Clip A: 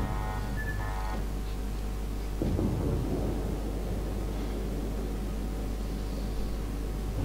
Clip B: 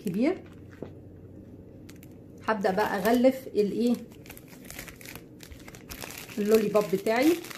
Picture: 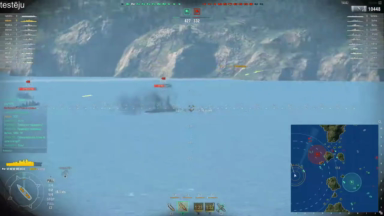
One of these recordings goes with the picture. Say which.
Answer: A